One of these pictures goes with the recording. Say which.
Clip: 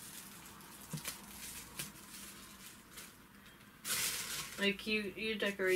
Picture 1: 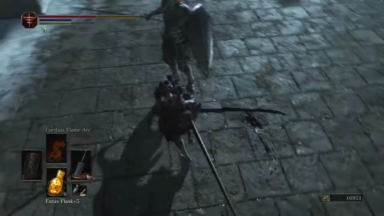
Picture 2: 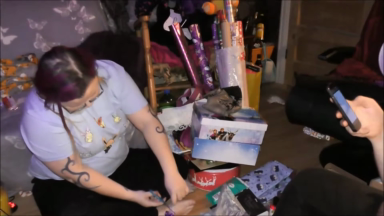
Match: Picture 2